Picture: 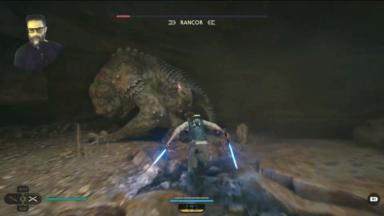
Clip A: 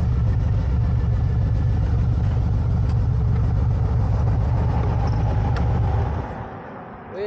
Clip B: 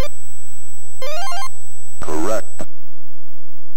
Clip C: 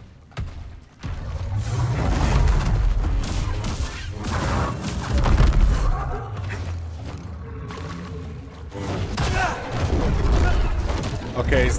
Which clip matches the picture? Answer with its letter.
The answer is C